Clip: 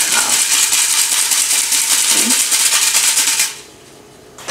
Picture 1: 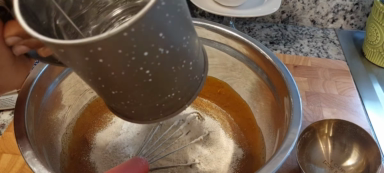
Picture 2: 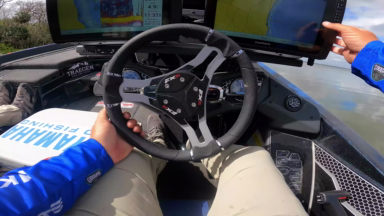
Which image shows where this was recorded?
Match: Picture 1